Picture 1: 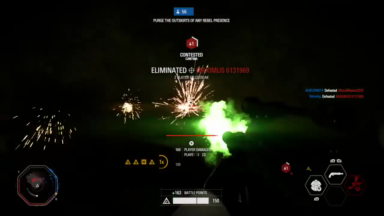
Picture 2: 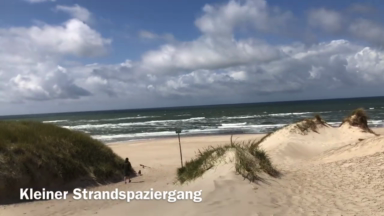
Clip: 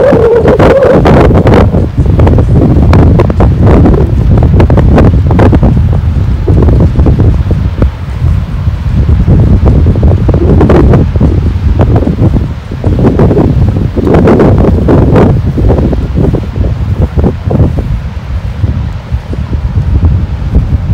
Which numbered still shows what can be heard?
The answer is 2